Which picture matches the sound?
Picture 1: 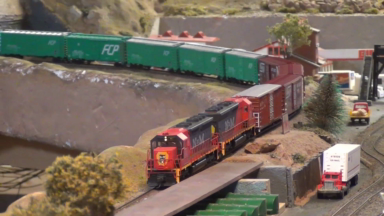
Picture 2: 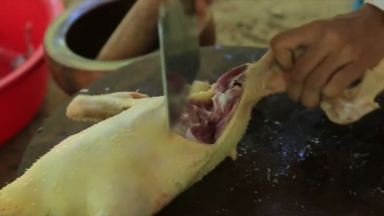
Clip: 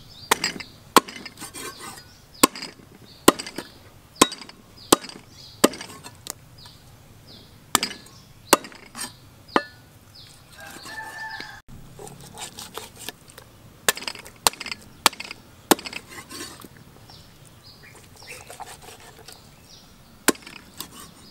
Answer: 2